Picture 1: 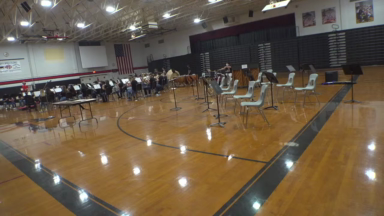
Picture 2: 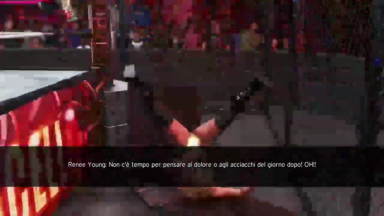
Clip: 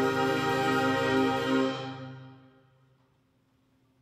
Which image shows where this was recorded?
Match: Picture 1